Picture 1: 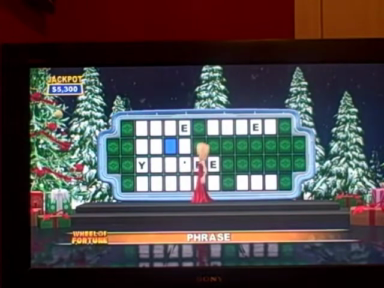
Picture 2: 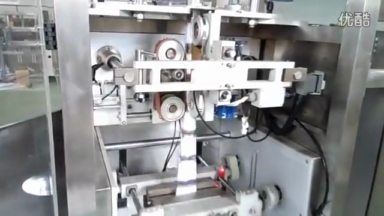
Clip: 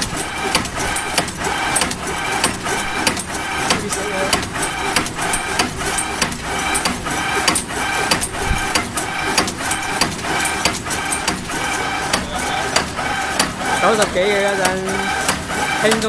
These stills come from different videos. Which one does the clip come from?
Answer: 2